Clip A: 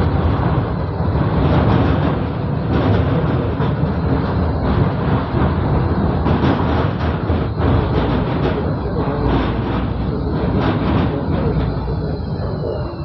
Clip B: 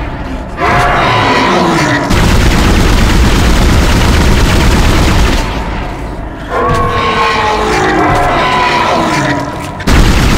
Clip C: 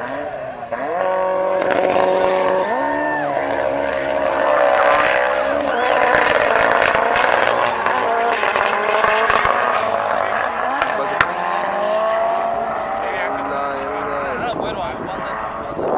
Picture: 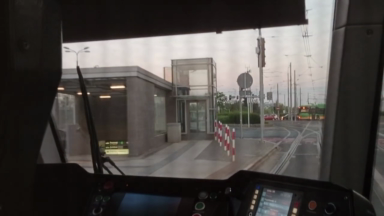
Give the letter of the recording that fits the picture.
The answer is A